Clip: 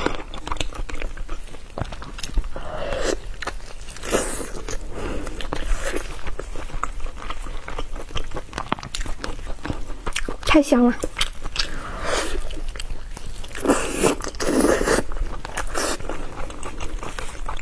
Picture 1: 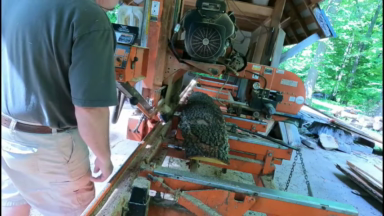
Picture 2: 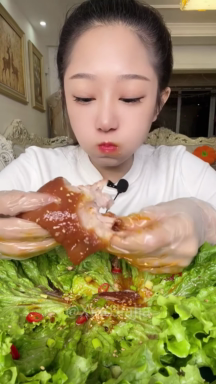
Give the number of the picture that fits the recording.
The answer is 2